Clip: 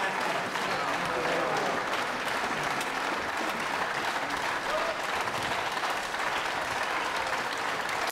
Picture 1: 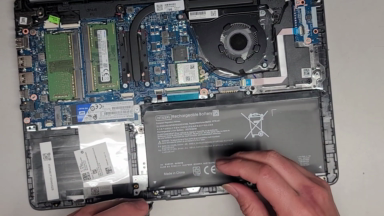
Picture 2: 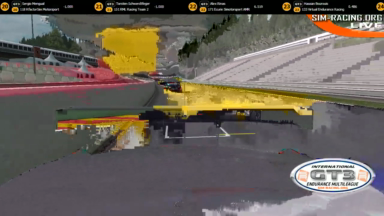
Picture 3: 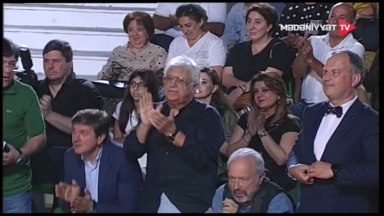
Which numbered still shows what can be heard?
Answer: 3